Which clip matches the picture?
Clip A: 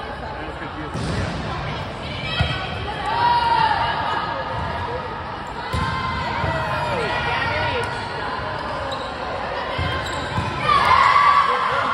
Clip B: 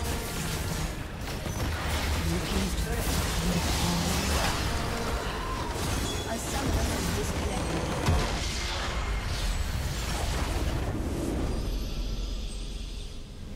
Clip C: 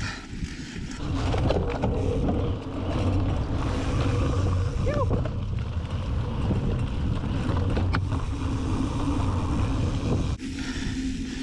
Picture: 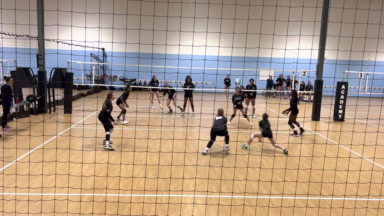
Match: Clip A